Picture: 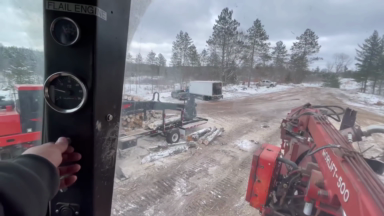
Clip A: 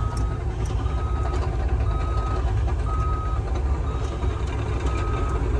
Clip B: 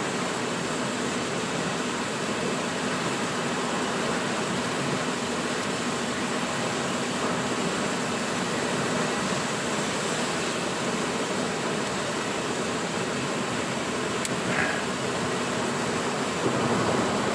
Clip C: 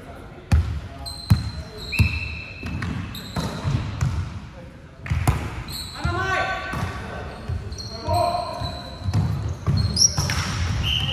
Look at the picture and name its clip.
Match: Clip A